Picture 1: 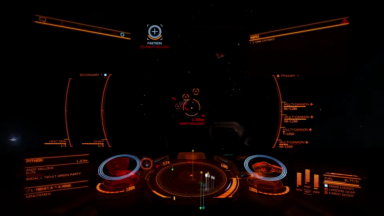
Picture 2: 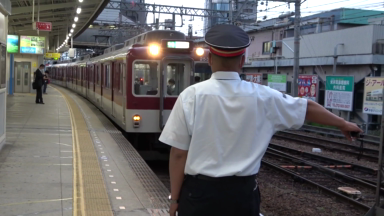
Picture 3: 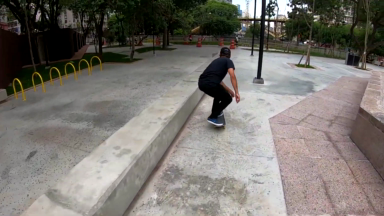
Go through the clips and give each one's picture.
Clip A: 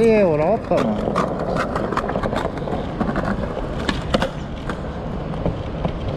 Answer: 3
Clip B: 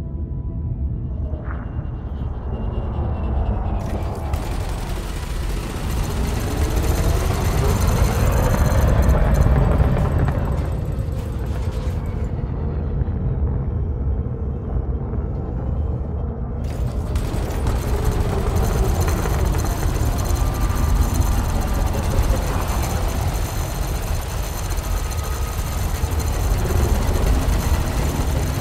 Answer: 1